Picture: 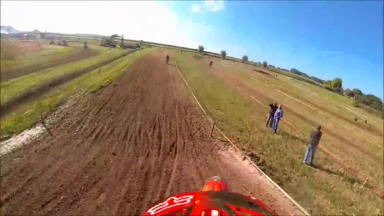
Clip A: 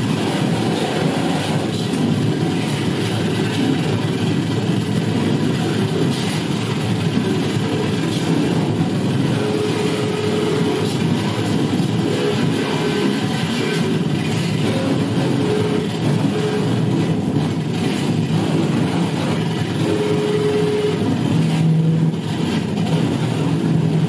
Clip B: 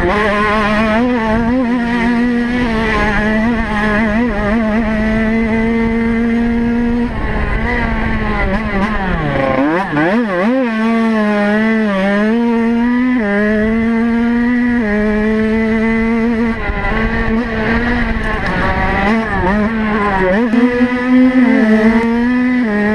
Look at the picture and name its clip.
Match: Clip B